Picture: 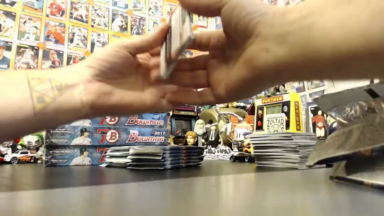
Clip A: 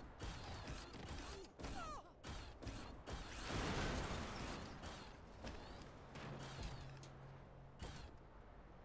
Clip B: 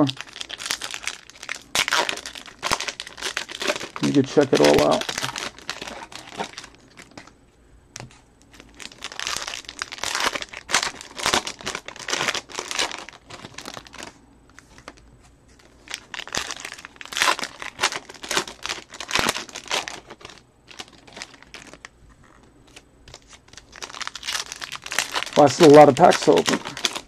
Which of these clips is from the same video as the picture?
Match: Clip B